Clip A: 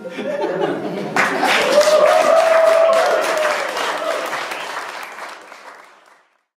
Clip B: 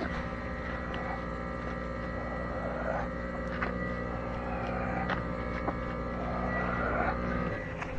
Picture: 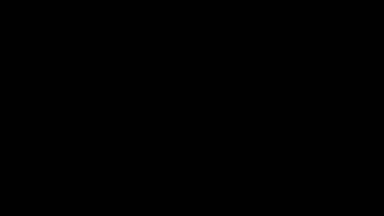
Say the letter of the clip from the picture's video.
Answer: A